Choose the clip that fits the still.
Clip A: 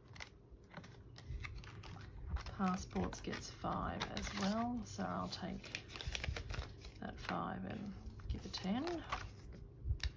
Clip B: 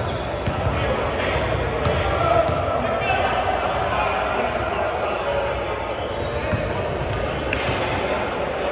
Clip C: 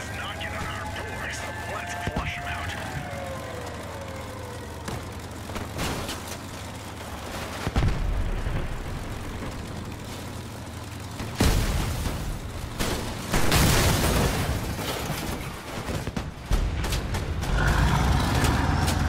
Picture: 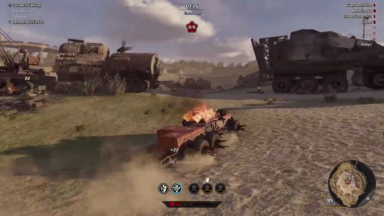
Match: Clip C